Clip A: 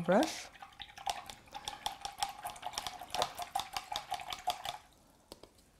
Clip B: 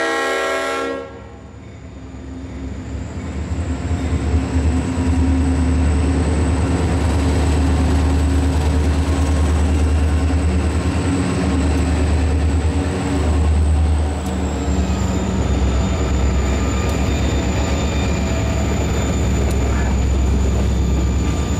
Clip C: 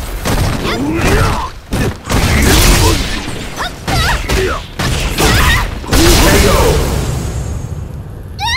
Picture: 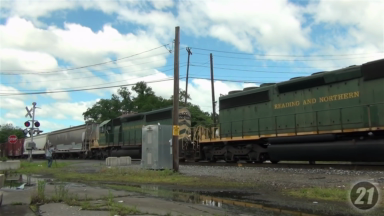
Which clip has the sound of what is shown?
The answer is B